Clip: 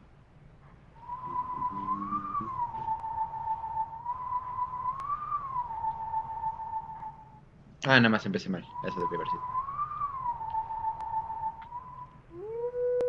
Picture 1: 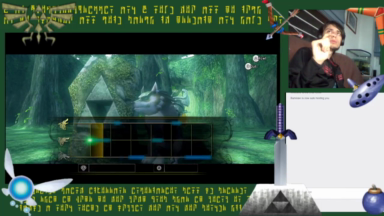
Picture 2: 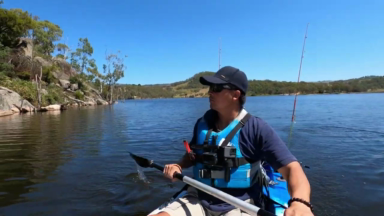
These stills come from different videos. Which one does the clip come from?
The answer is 1